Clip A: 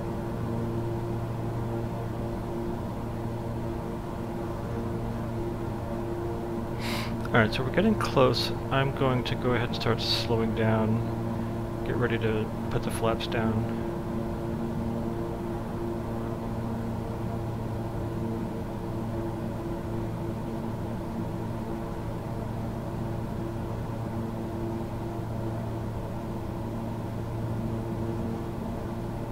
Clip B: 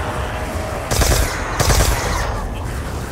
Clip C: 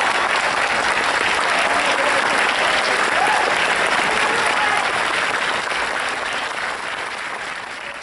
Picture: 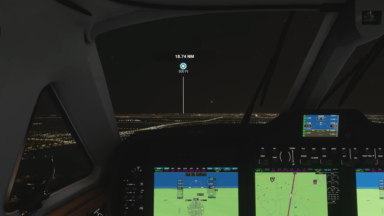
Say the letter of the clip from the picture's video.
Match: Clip A